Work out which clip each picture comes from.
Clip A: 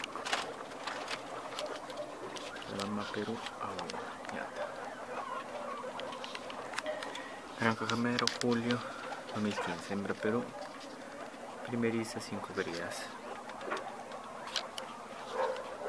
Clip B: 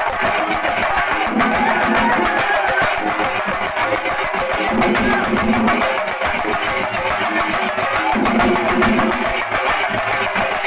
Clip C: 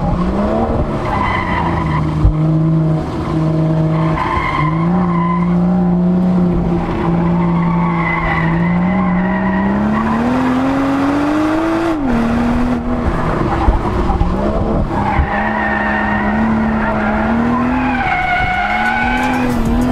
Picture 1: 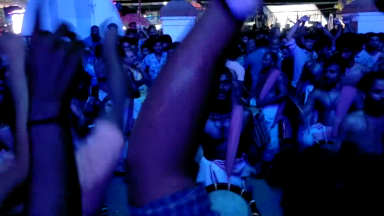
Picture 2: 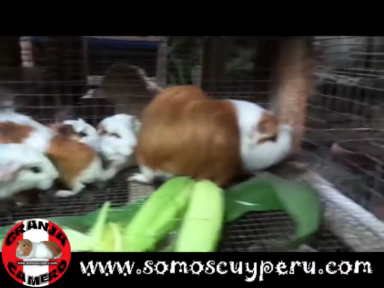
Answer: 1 B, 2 A